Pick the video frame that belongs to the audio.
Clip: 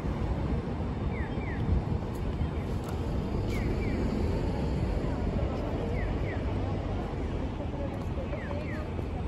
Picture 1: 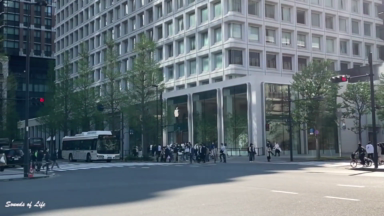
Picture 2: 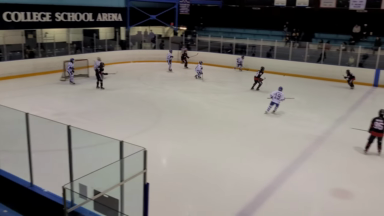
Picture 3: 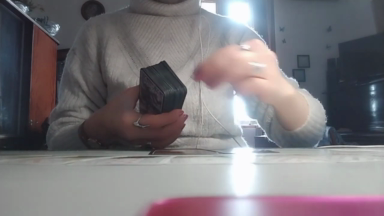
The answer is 1